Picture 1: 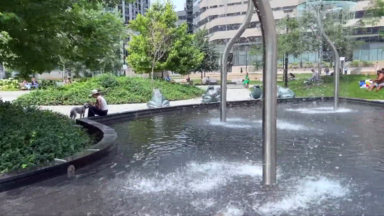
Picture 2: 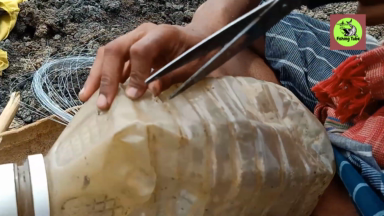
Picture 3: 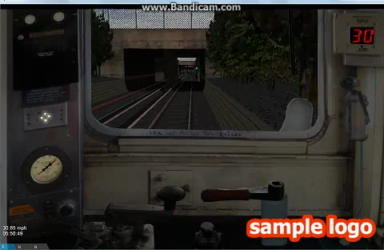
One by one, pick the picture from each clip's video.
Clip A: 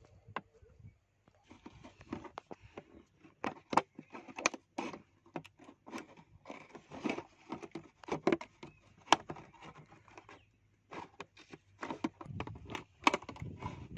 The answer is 2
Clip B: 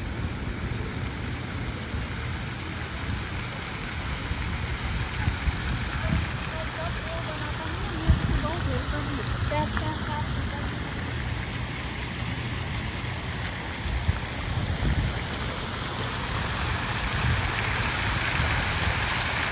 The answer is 1